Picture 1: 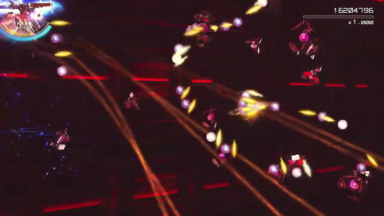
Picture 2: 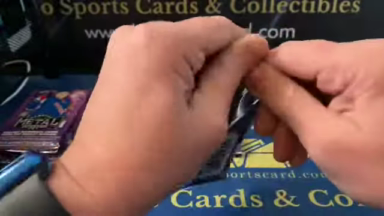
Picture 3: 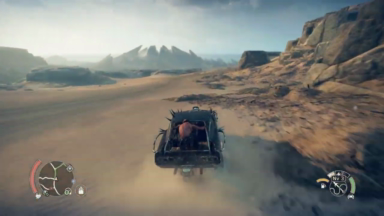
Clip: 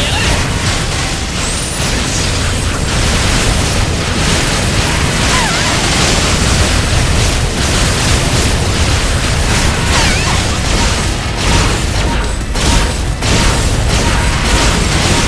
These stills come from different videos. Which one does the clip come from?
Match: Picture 1